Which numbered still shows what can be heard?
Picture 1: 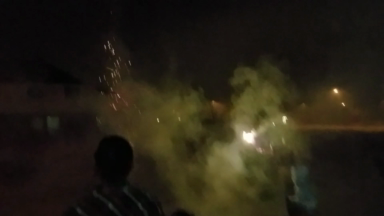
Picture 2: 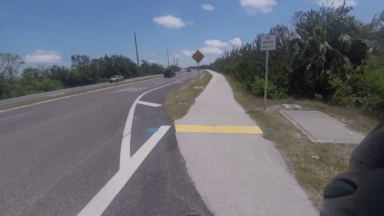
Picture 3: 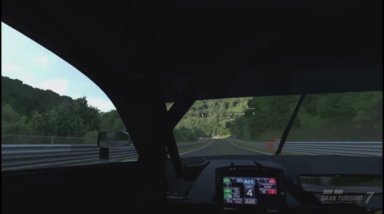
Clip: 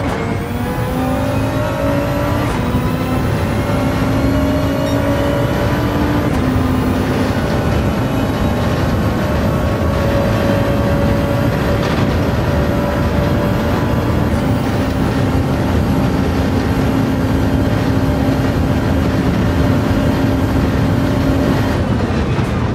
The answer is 3